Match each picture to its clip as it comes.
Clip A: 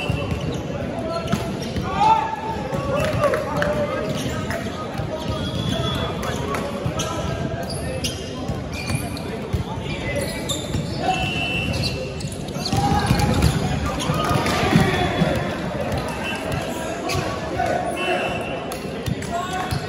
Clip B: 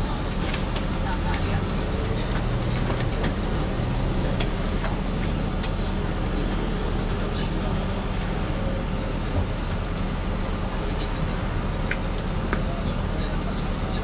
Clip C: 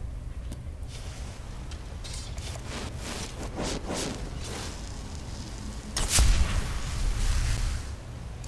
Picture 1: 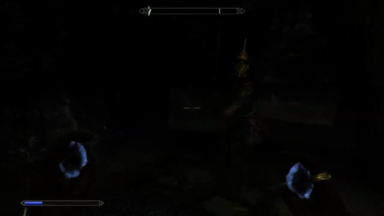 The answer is C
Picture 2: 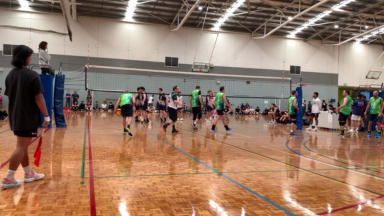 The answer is A